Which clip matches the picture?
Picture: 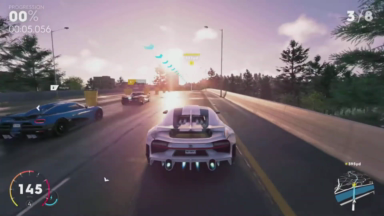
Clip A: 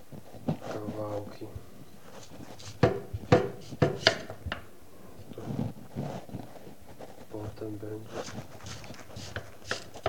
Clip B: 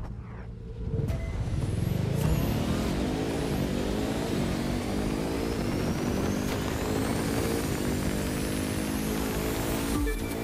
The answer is B